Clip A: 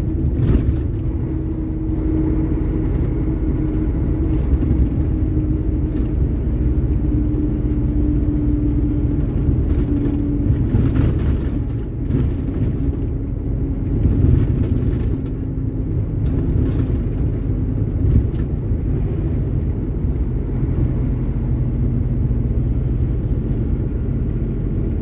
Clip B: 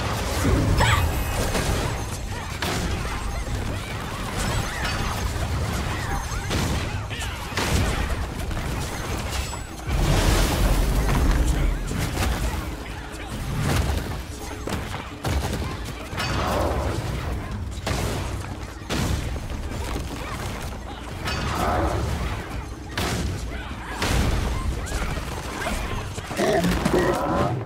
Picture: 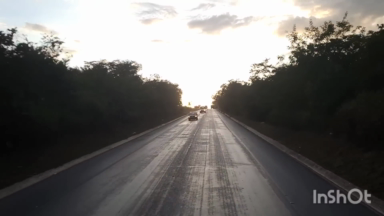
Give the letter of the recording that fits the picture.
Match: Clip A